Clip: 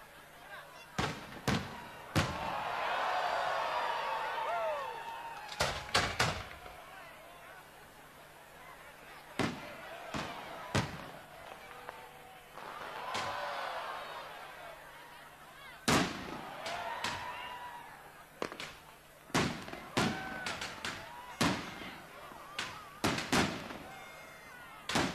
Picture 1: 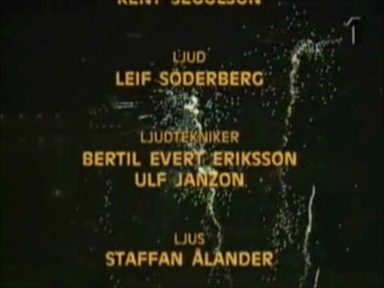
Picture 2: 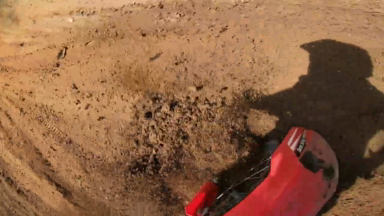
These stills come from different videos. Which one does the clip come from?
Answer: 1